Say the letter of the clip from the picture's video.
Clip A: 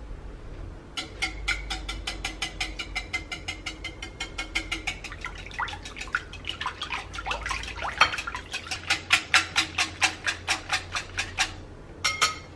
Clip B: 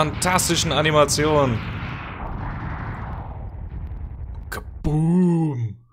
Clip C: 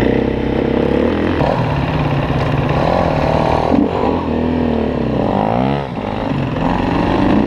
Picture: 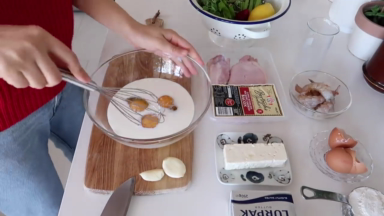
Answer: A